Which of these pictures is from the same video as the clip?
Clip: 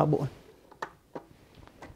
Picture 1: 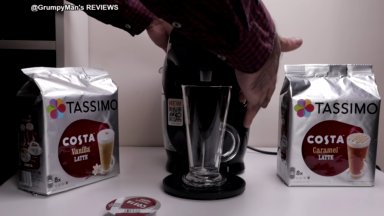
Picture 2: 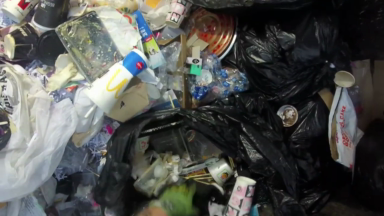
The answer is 1